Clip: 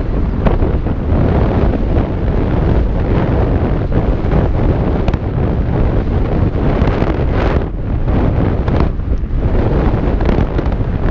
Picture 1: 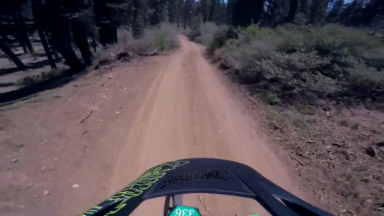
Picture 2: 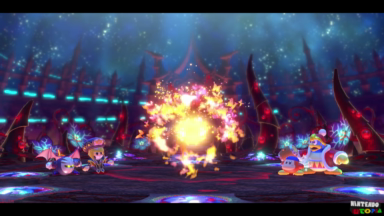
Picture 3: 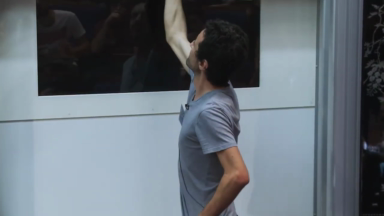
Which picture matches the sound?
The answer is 1